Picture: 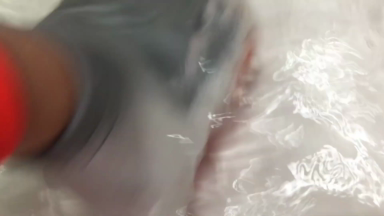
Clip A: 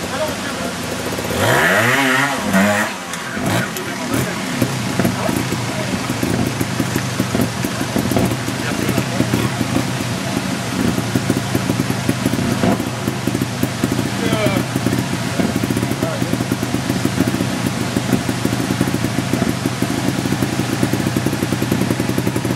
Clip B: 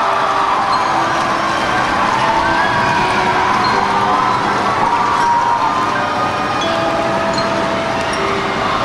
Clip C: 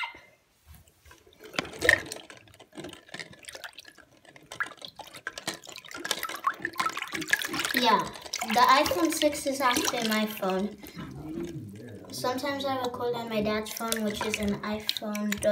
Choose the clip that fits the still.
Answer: C